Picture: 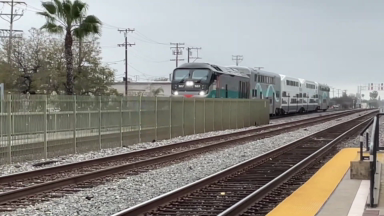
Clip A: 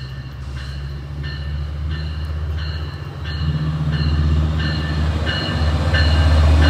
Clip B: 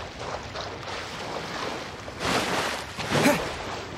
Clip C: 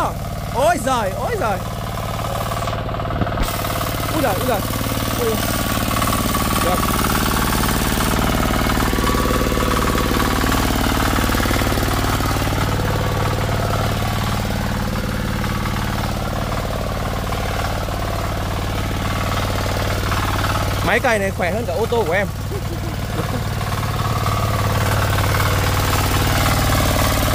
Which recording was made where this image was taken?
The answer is A